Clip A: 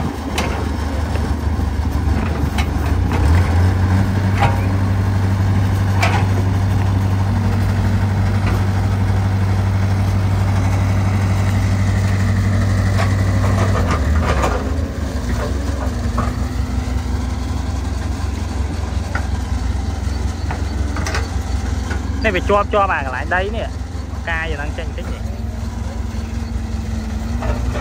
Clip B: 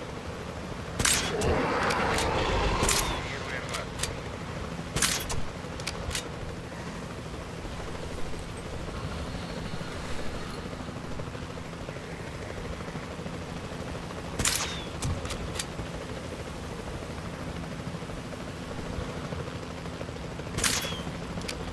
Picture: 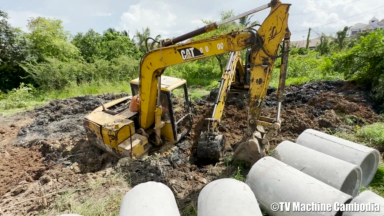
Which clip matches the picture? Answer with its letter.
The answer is A